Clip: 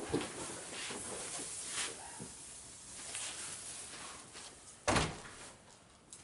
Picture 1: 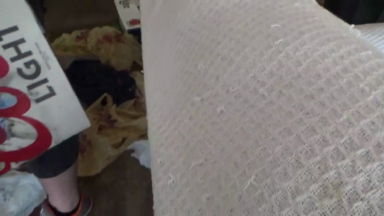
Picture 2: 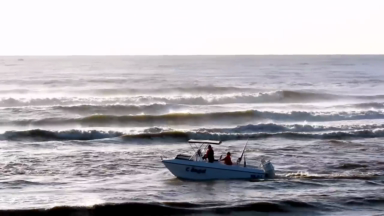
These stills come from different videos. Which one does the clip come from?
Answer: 1